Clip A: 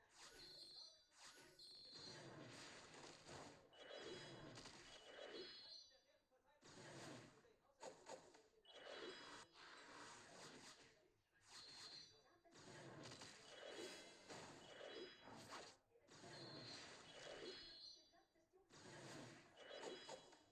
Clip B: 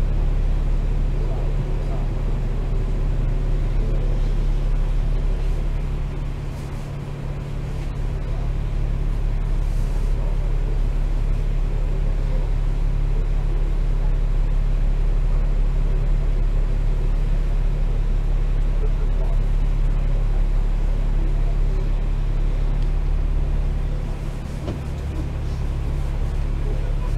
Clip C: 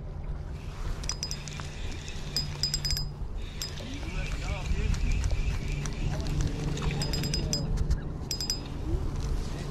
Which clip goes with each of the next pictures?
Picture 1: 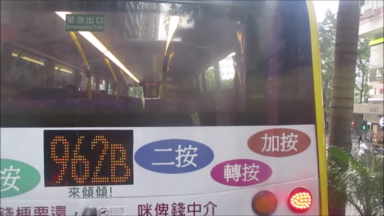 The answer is B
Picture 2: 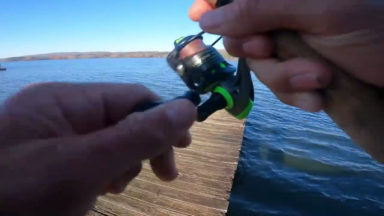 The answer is C